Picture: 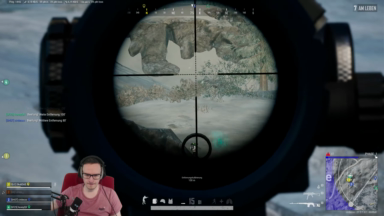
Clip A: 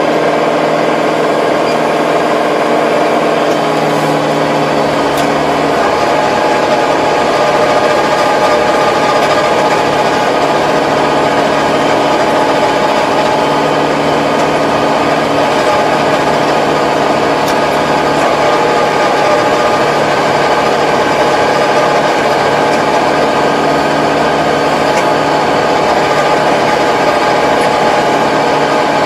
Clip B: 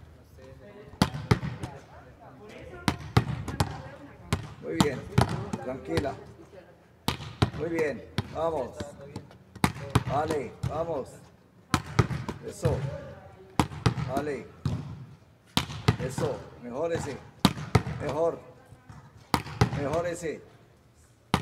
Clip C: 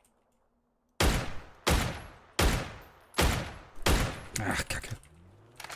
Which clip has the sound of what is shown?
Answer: C